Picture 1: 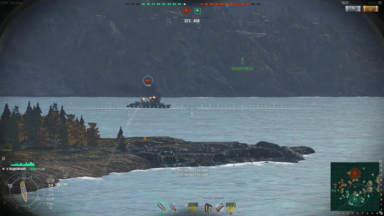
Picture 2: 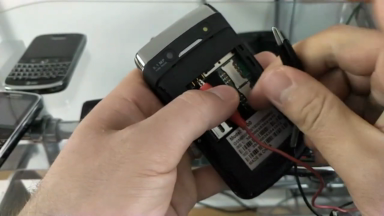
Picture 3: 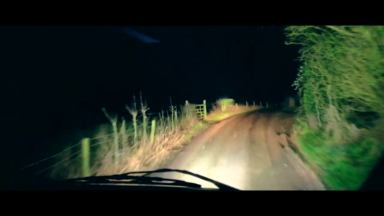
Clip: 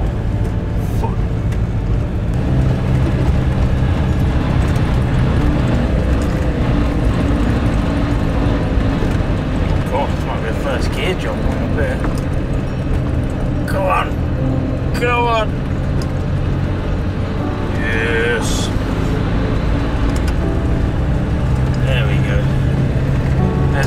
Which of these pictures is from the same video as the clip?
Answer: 3